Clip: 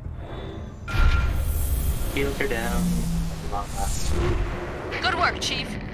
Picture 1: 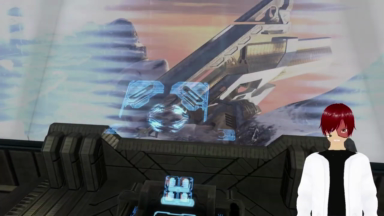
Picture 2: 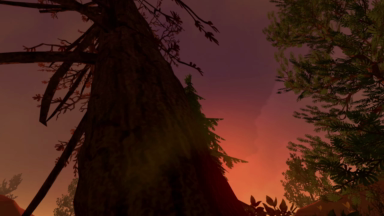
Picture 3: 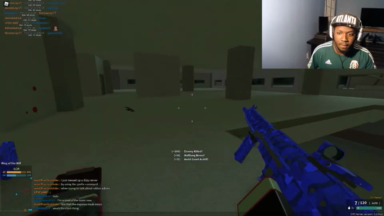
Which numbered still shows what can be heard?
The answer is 1